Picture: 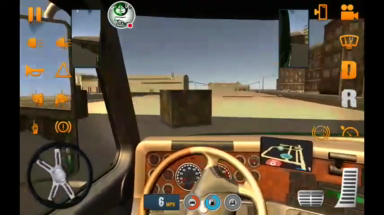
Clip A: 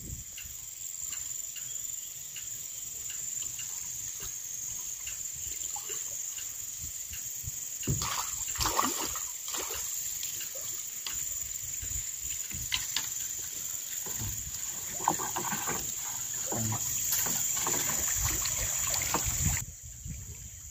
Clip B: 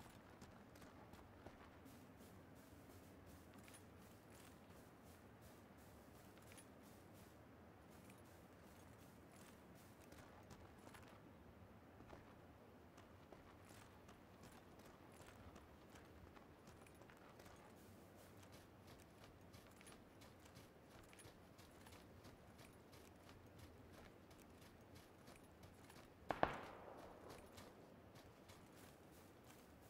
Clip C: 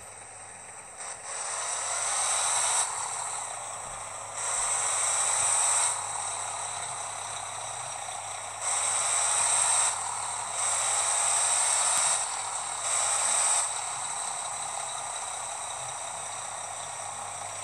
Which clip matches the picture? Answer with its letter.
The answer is C